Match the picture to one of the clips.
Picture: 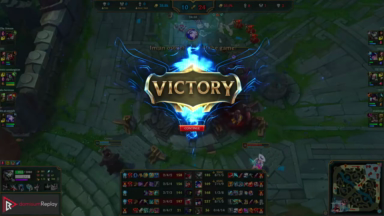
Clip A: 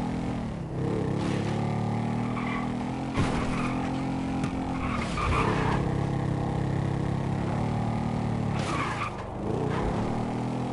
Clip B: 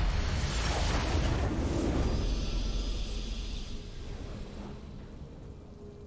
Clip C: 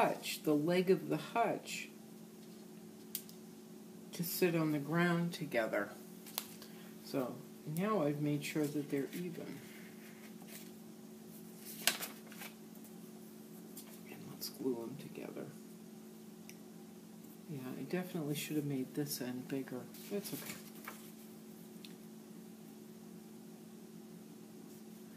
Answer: B